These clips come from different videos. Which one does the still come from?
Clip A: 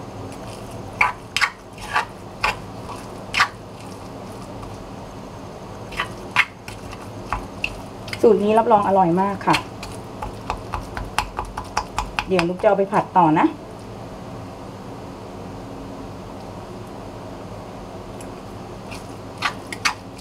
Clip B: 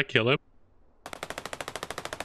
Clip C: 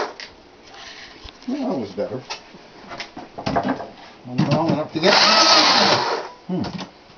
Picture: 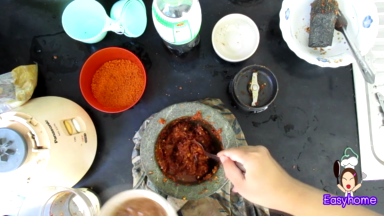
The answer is A